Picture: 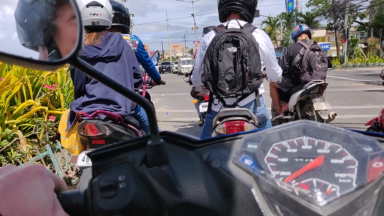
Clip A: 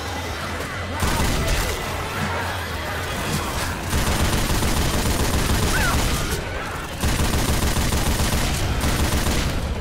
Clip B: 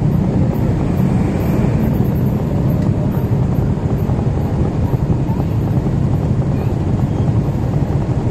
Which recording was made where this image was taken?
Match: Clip B